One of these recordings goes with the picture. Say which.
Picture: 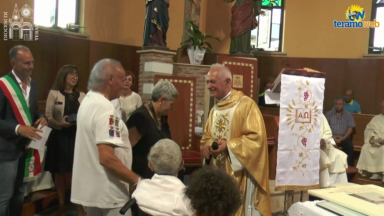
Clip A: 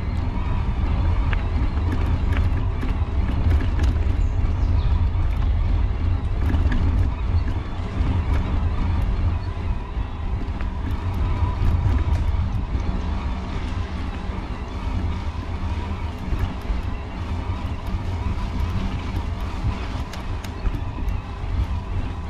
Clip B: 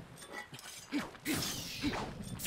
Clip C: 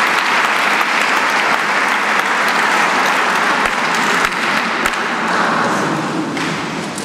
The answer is C